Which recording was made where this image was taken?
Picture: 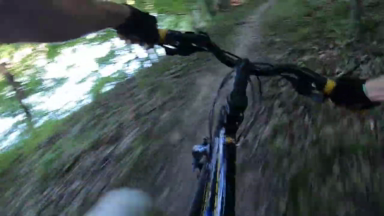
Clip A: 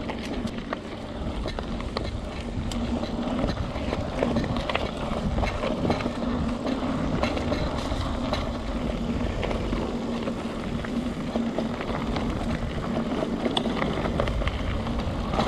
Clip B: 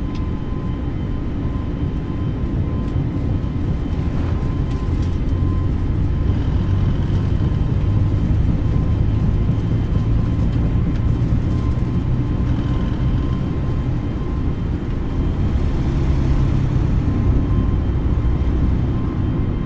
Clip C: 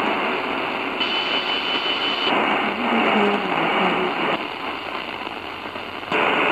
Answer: A